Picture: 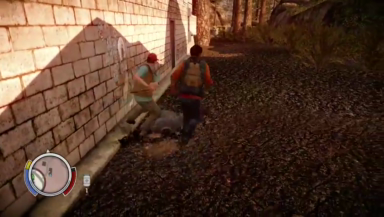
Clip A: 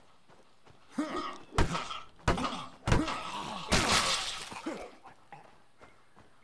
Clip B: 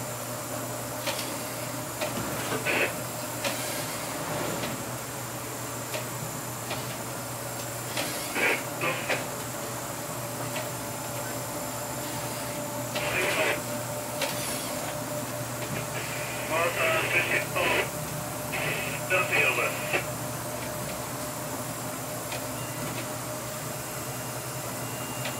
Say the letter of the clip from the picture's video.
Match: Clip A